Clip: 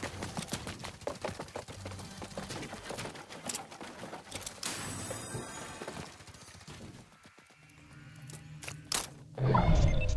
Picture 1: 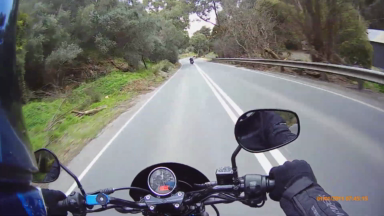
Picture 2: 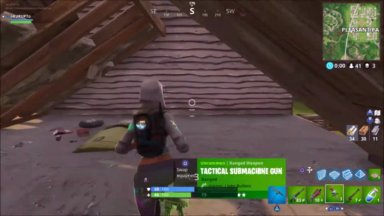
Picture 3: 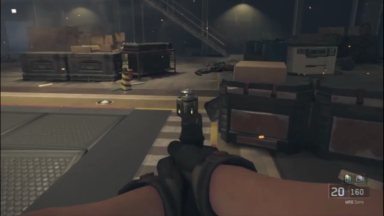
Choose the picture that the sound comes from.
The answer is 2